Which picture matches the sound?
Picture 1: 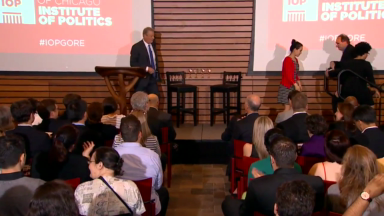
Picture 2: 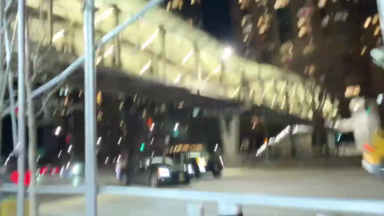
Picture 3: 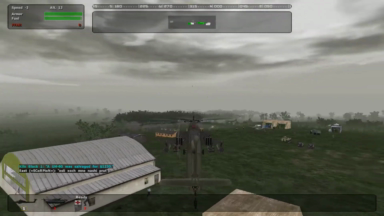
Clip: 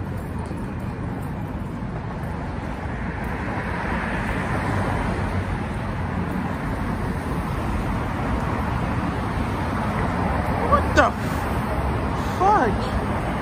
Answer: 2